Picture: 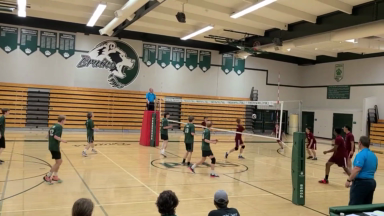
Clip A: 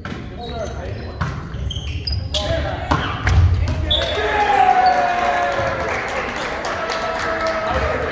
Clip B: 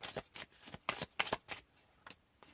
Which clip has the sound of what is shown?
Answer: A